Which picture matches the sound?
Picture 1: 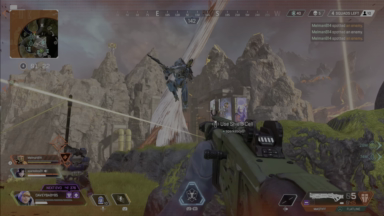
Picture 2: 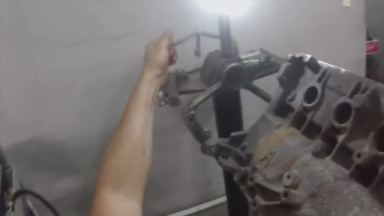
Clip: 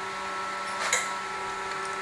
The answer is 2